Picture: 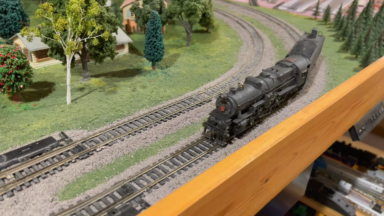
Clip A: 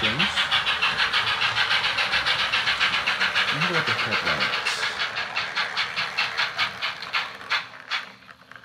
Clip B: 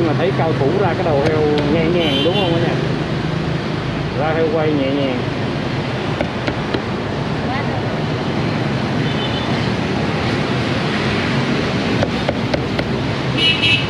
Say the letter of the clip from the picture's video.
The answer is A